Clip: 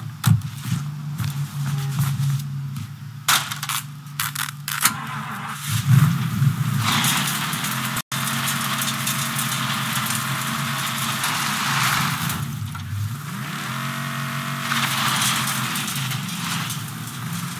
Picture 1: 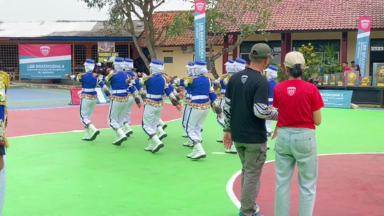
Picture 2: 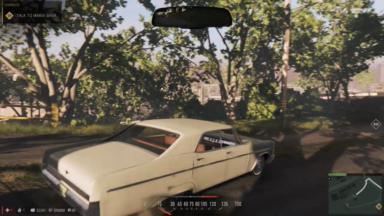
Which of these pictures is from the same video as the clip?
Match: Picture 2